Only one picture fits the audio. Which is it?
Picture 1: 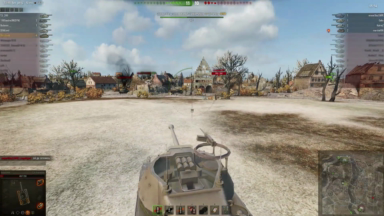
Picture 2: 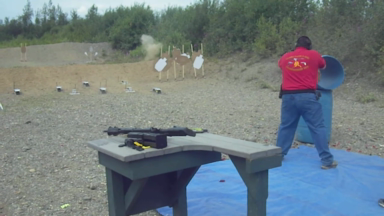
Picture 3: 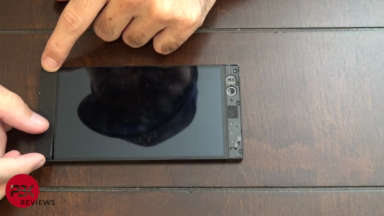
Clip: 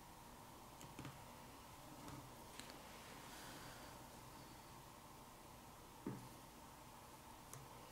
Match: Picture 3